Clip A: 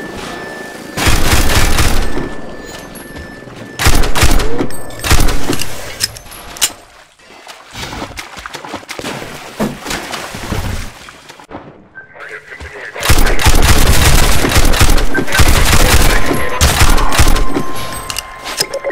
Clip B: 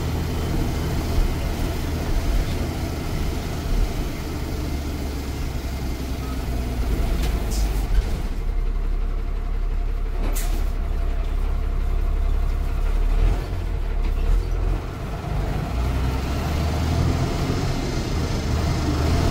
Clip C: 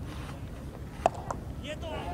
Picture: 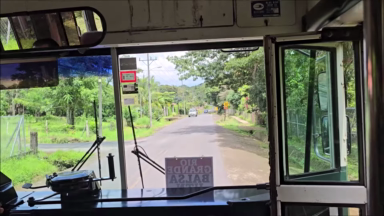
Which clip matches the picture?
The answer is B